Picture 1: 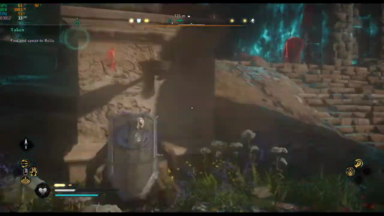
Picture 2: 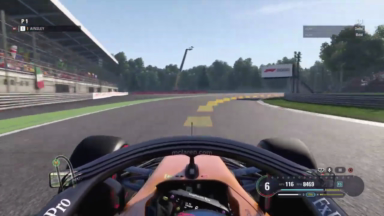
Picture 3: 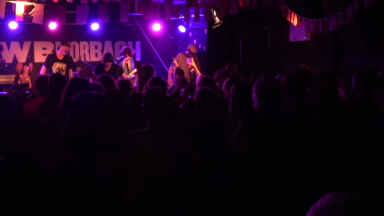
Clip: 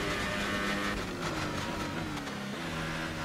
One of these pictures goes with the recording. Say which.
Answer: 2